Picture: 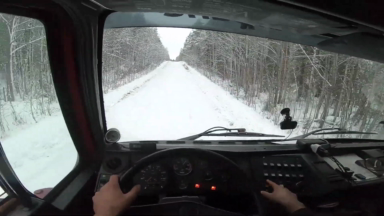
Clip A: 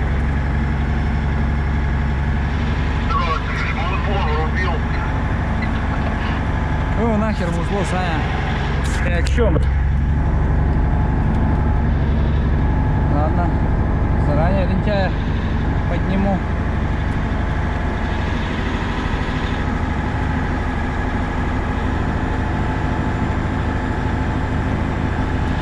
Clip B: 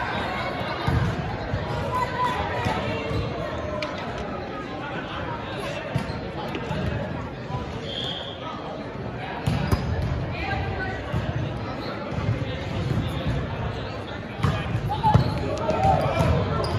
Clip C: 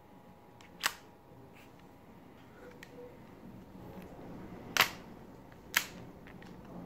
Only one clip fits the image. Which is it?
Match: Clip A